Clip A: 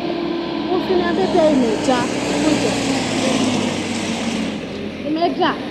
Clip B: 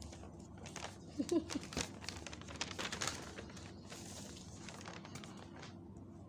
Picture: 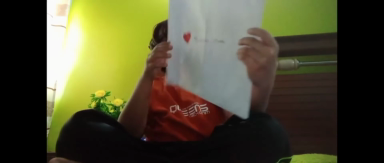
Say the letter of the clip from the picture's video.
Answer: B